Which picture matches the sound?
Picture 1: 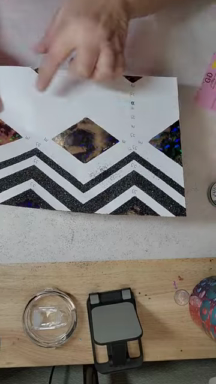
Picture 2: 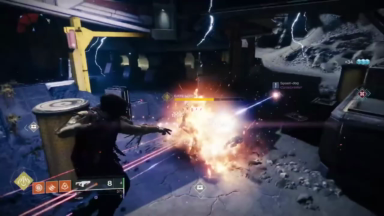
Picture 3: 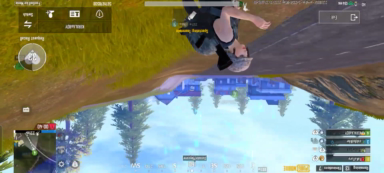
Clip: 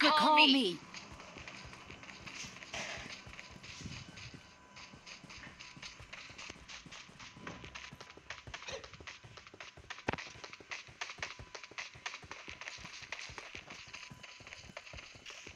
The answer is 3